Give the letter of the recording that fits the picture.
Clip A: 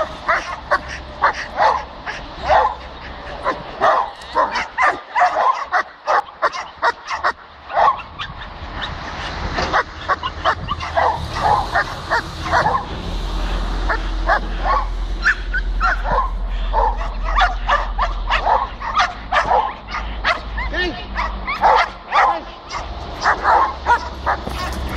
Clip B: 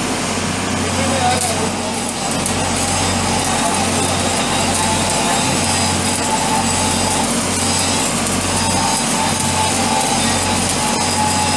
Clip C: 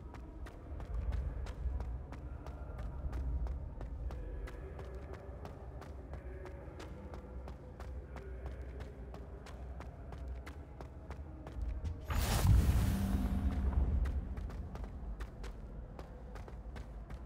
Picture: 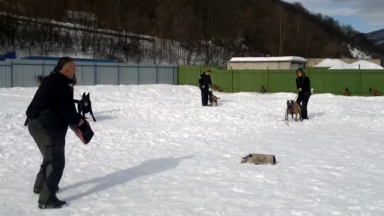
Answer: A